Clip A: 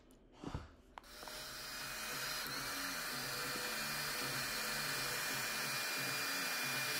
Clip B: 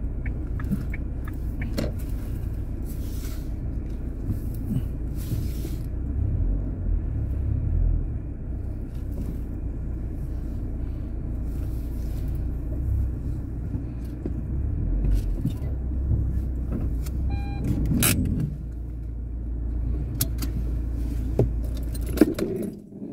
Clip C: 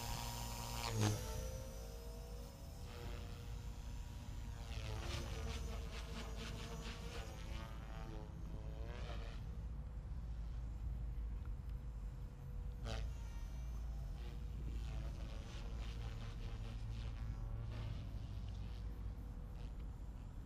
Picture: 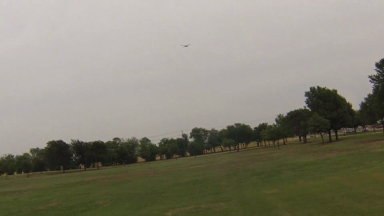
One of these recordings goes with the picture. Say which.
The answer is C